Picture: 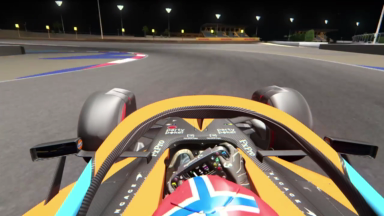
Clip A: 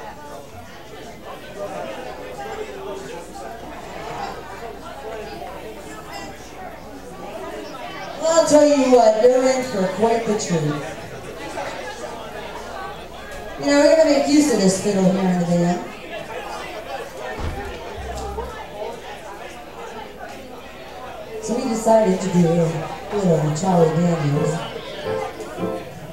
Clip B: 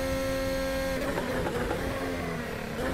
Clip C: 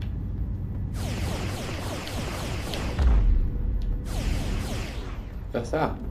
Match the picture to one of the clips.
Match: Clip B